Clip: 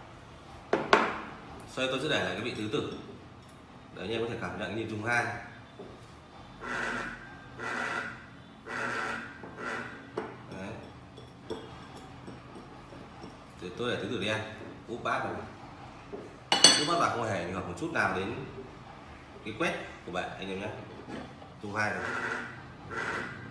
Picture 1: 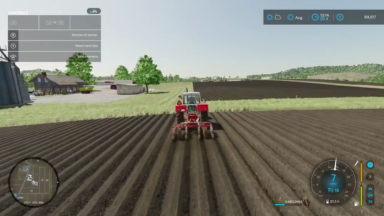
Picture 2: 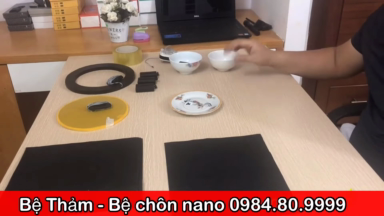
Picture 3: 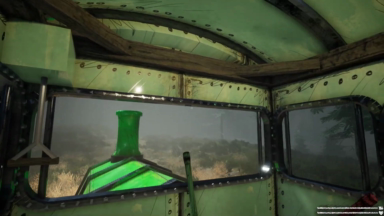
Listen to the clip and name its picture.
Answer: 2